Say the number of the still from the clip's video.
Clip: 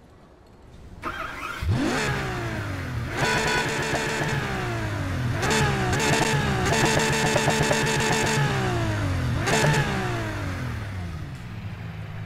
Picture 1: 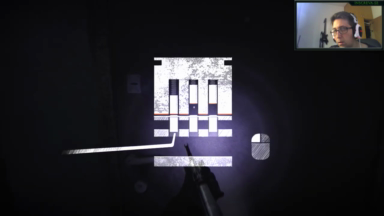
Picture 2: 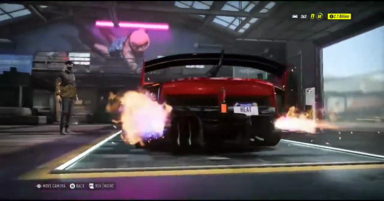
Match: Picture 2